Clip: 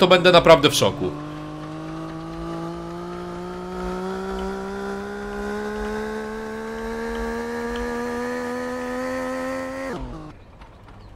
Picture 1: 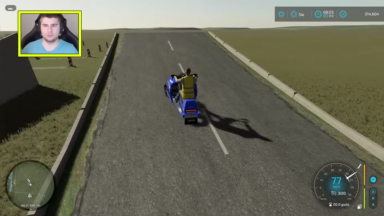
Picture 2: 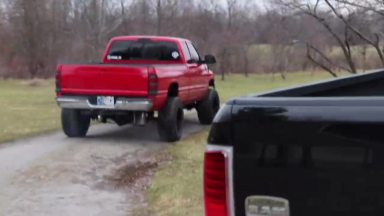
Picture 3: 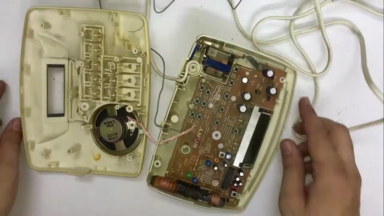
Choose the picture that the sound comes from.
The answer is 1